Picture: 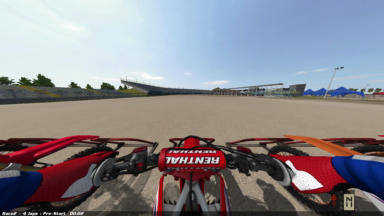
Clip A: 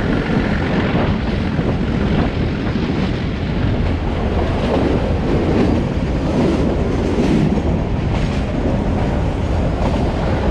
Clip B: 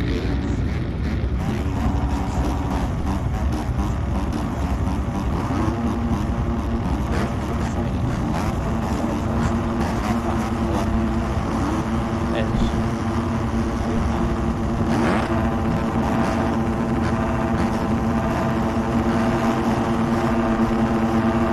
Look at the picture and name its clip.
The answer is B